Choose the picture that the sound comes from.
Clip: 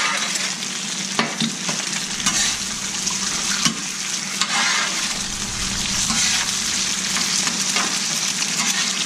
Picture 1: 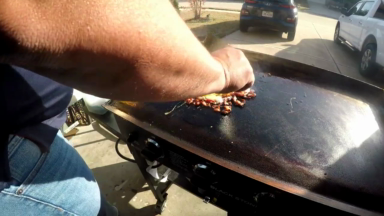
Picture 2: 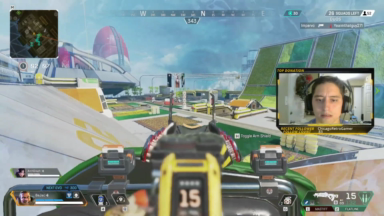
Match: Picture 1